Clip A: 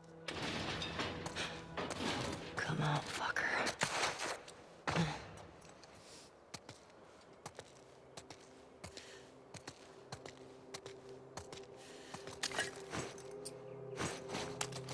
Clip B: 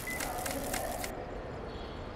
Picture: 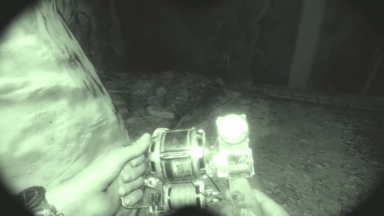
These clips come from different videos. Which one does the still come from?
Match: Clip B